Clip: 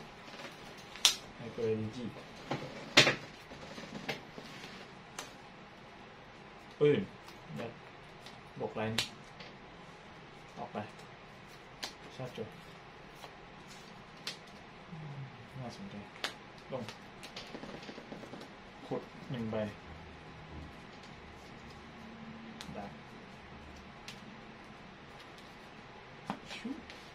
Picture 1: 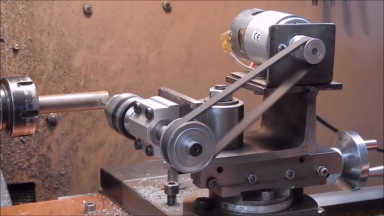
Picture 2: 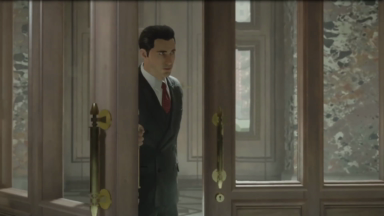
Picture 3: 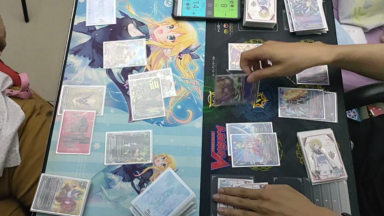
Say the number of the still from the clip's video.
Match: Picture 3